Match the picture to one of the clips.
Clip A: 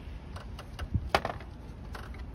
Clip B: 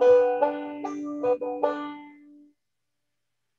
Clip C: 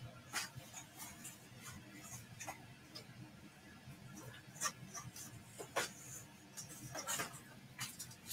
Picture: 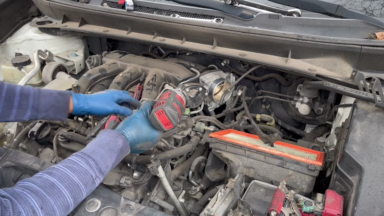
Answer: A